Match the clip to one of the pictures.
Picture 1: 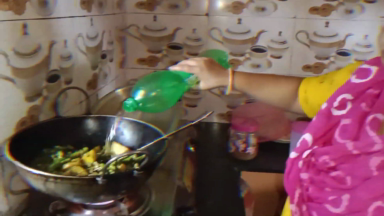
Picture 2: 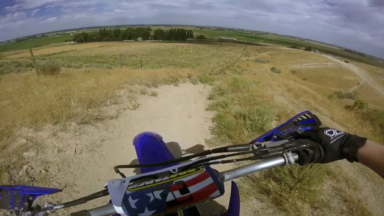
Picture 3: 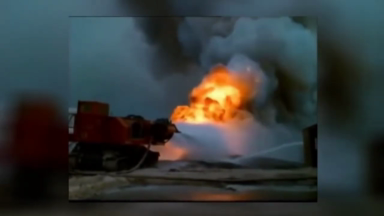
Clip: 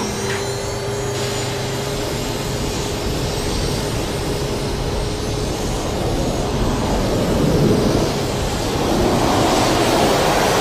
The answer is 3